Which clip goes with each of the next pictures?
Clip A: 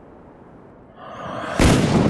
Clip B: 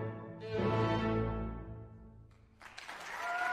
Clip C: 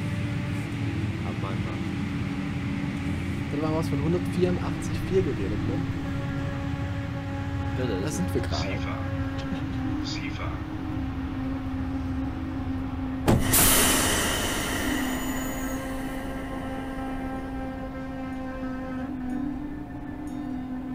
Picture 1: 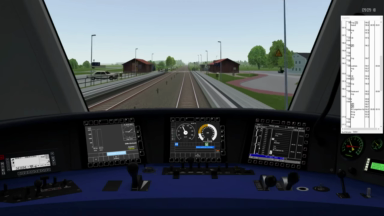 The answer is C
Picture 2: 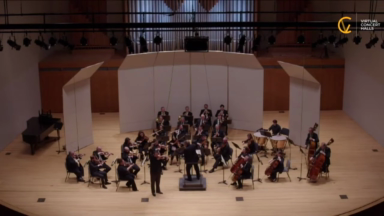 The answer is B